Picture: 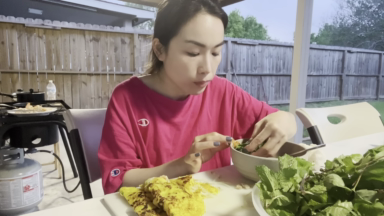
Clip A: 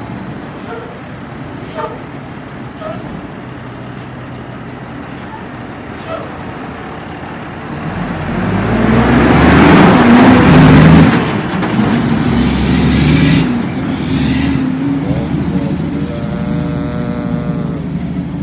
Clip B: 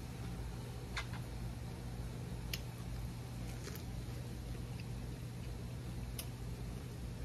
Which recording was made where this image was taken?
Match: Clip B